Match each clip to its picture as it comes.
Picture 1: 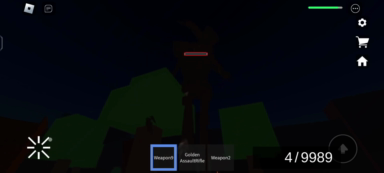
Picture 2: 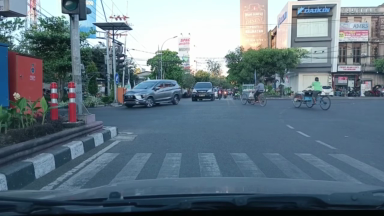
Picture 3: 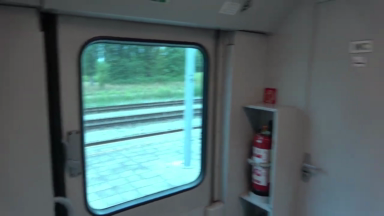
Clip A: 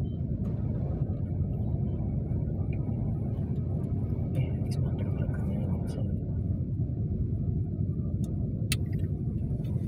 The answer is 2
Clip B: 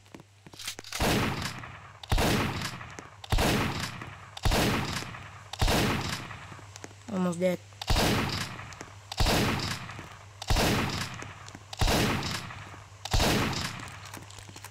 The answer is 1